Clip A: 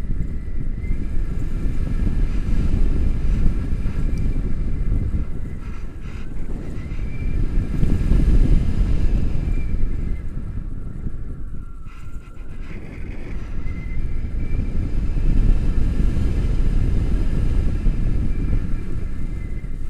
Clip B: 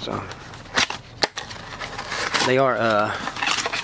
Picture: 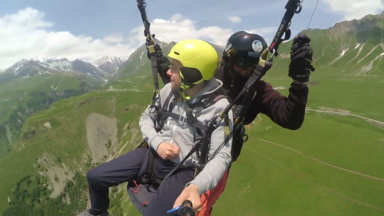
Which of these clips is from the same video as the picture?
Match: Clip A